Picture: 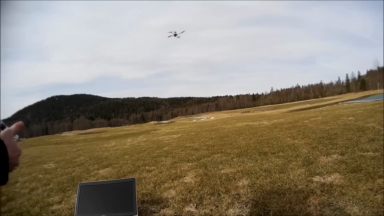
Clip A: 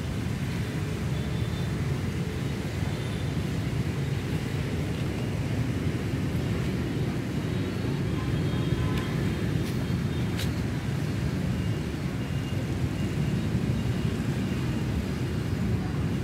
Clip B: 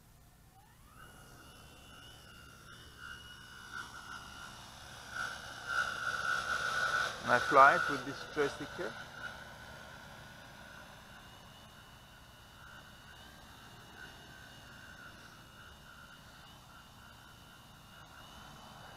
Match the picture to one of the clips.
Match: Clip B